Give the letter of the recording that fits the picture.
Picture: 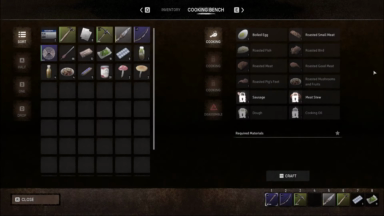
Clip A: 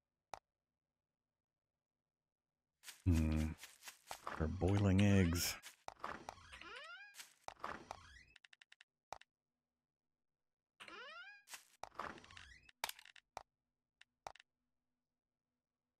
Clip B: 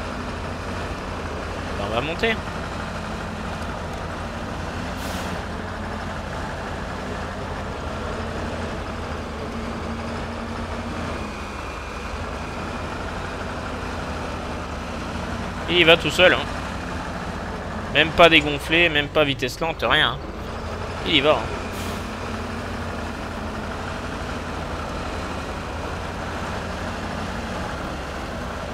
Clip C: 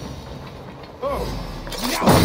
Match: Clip A